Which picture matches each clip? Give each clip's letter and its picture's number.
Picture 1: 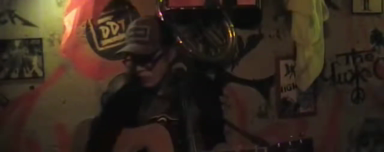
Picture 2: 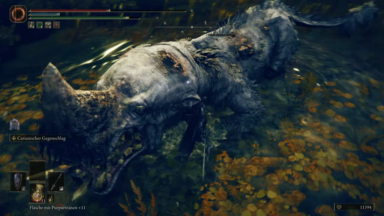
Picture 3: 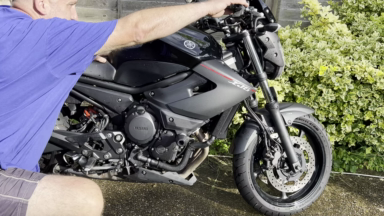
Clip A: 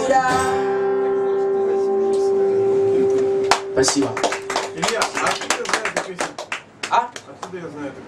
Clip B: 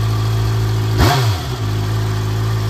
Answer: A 1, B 3